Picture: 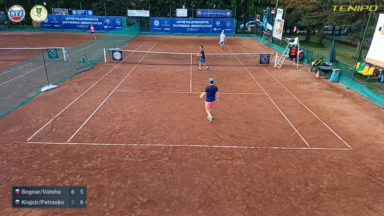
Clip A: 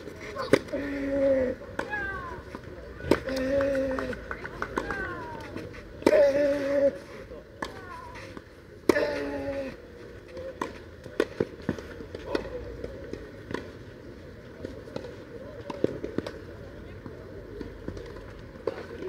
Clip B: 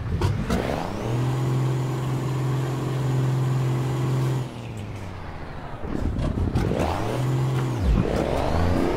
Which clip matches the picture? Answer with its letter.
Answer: A